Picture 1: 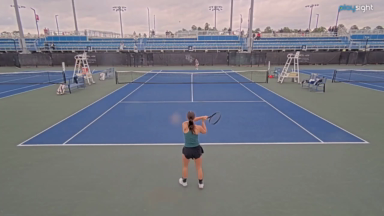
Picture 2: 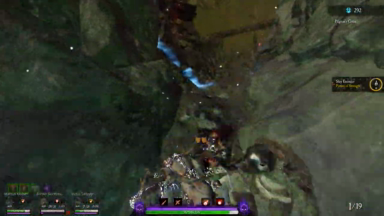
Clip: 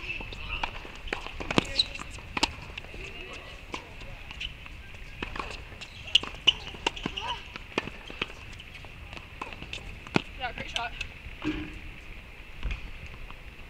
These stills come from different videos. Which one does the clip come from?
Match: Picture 1